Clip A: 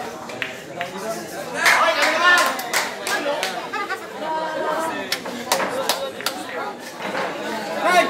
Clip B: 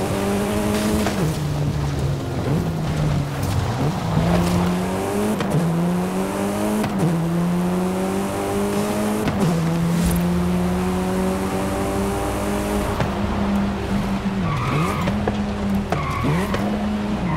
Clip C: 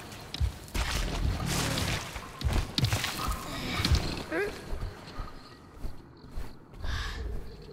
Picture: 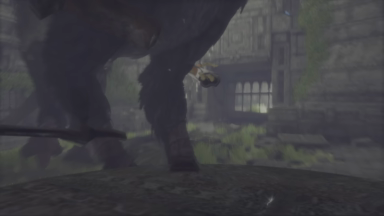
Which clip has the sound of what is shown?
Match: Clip C